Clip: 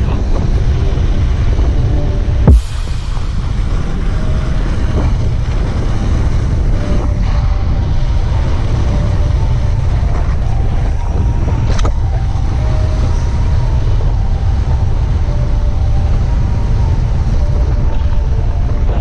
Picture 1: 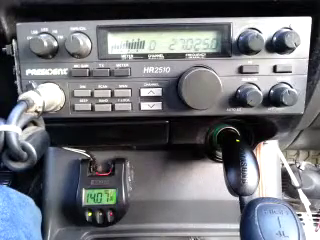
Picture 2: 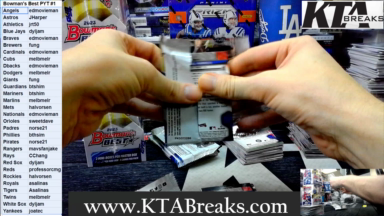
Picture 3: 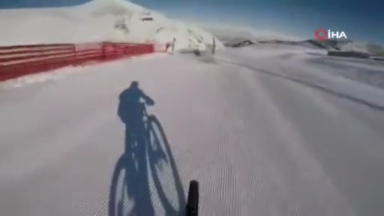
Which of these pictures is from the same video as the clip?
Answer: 3